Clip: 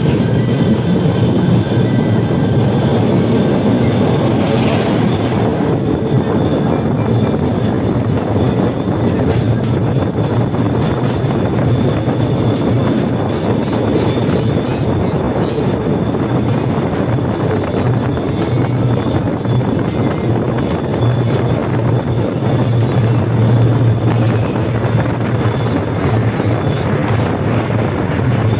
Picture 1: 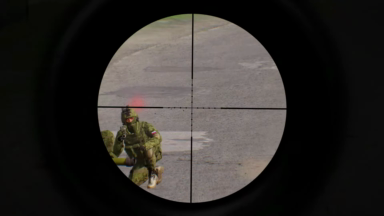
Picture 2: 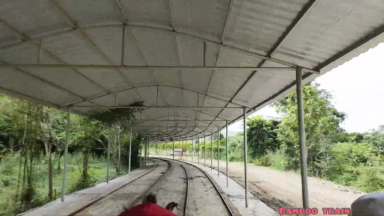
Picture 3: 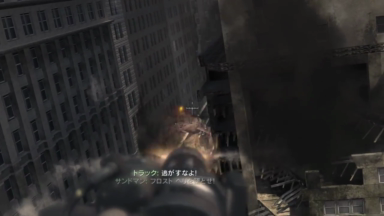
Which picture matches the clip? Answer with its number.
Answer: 2